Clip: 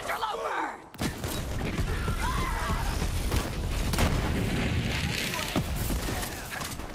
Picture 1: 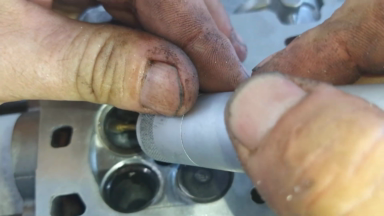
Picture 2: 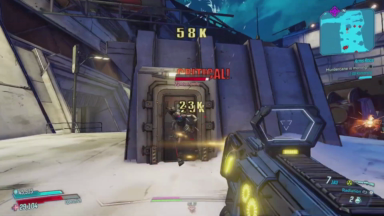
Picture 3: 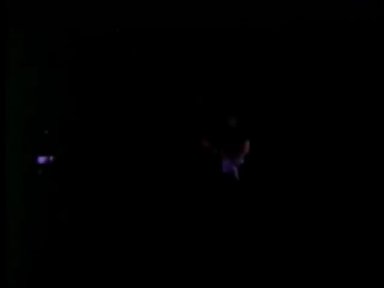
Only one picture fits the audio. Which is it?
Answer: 2